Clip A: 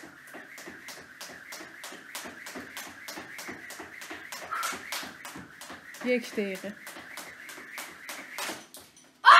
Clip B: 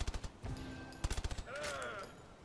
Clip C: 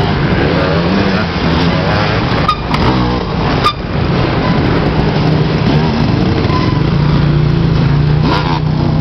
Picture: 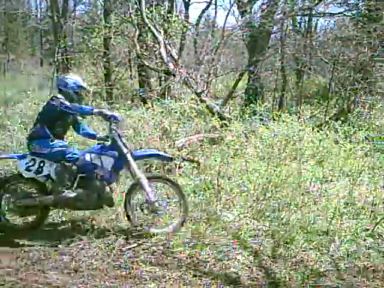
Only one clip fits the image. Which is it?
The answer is C